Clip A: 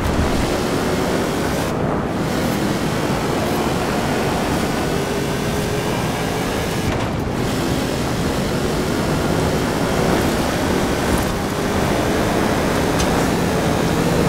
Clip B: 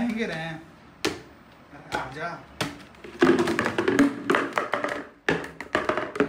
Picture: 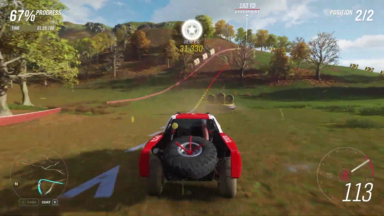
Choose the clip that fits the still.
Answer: A